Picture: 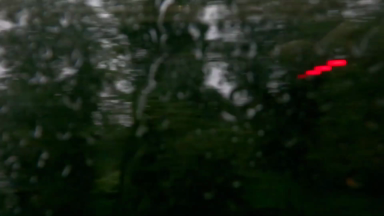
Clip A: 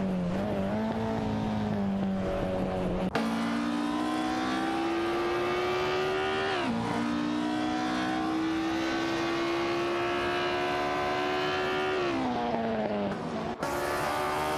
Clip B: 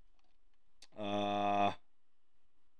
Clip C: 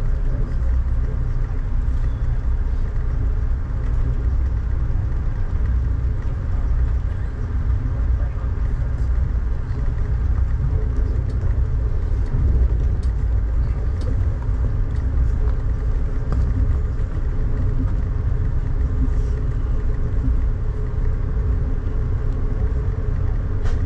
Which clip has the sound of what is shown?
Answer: C